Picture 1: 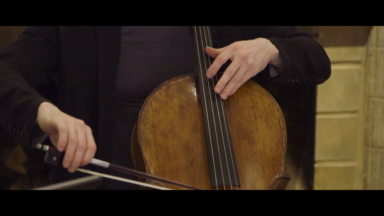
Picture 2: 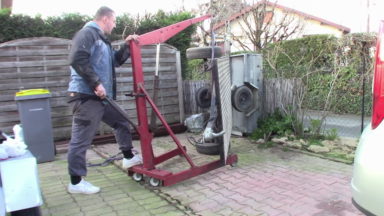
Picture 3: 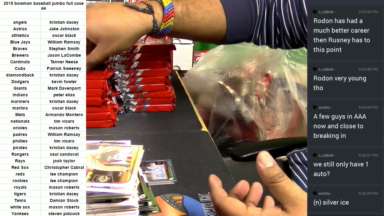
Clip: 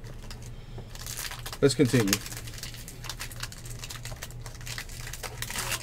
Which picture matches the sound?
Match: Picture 3